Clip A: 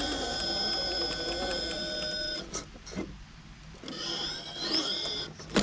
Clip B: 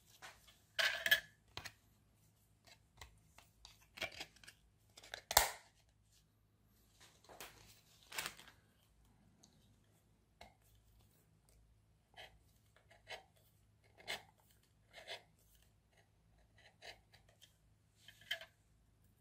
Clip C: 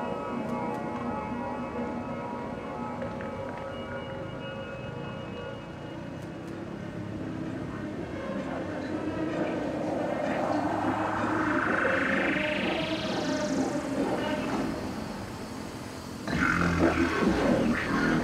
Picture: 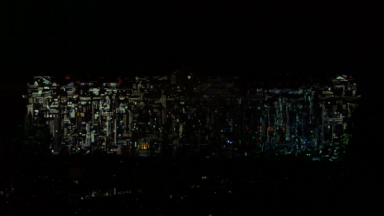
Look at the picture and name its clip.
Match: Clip C